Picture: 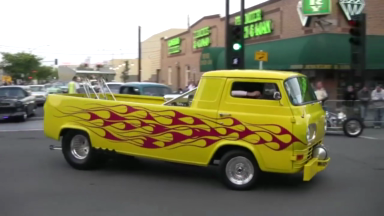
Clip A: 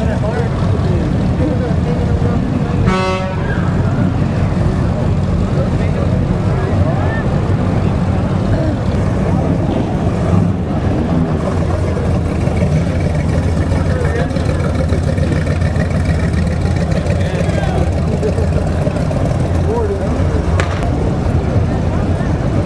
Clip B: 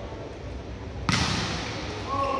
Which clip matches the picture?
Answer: A